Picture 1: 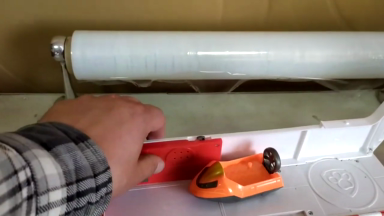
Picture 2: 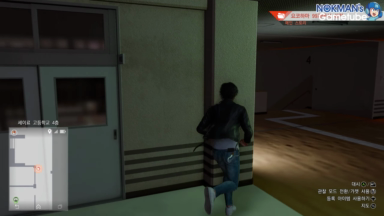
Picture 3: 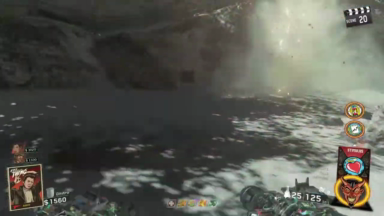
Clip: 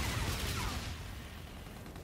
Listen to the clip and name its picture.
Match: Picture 3